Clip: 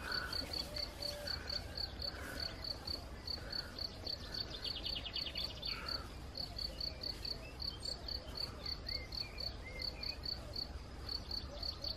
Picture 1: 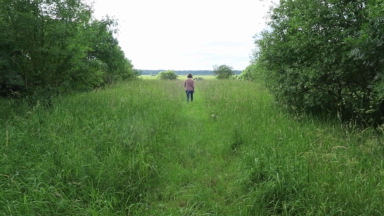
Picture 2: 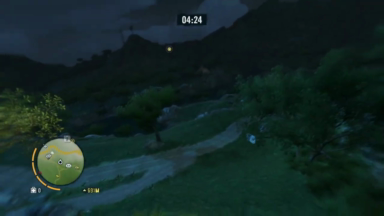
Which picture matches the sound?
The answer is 1